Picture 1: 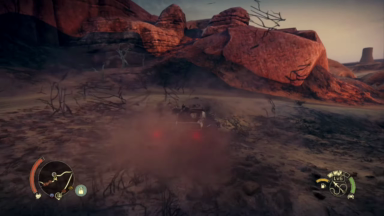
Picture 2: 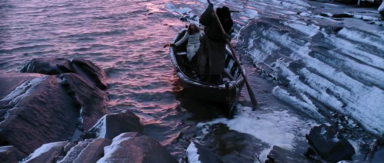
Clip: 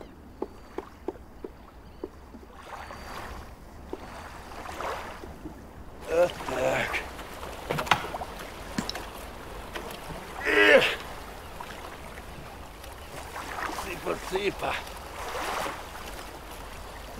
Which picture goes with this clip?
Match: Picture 2